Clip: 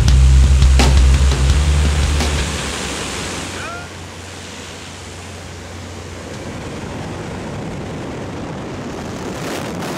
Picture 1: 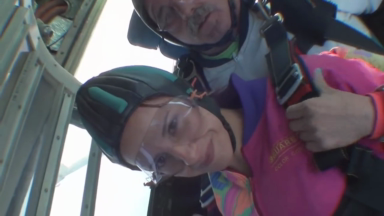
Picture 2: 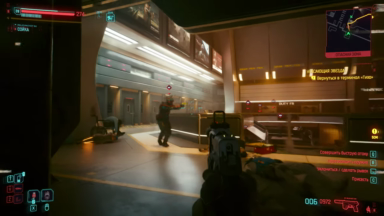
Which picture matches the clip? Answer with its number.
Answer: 1